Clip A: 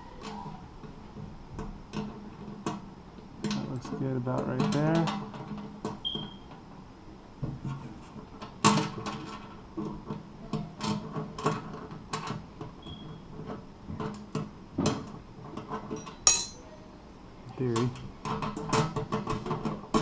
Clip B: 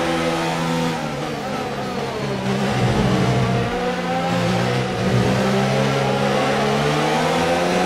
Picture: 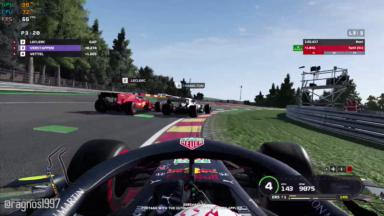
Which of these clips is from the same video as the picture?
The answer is B